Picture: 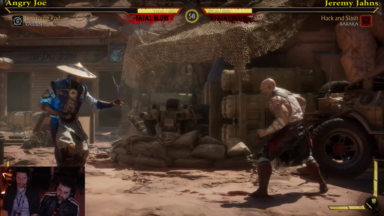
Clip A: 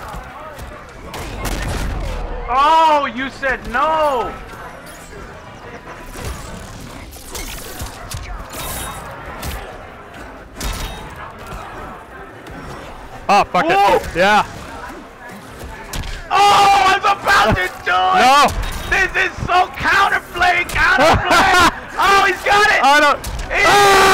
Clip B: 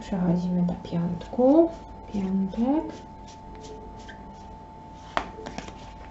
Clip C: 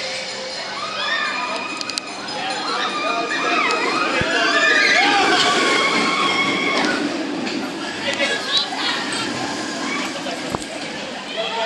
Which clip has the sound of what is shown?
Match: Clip A